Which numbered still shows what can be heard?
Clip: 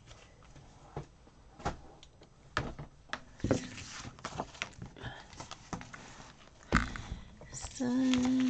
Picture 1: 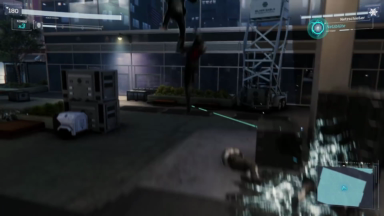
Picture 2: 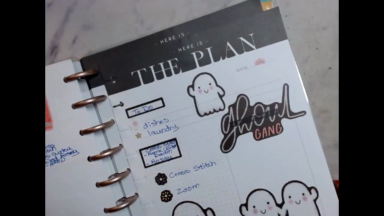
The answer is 2